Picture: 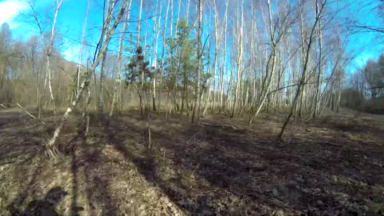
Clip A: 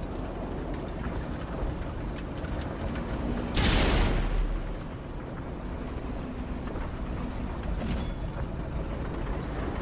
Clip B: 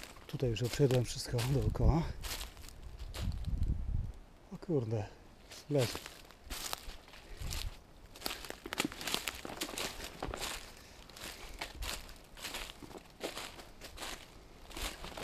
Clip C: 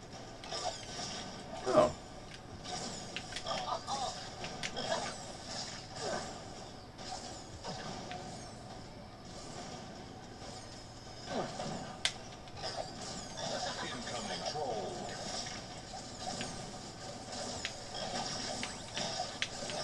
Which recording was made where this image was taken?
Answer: B